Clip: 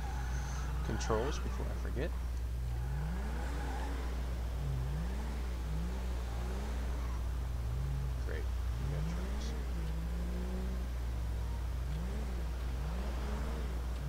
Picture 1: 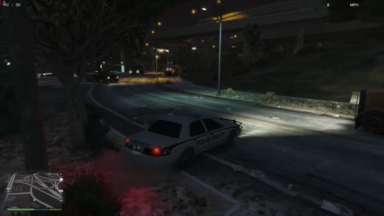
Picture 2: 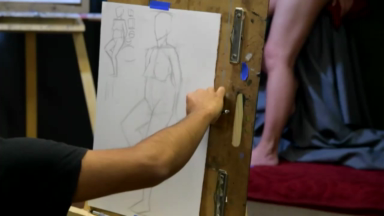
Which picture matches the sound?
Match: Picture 1